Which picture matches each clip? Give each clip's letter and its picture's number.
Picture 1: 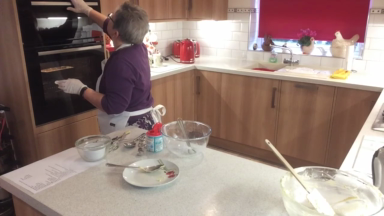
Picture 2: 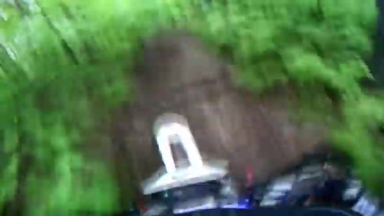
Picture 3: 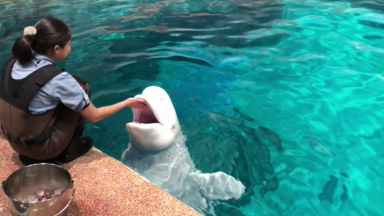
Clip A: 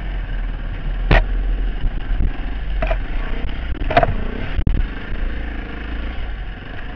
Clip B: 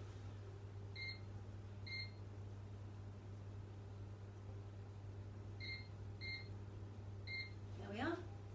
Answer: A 2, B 1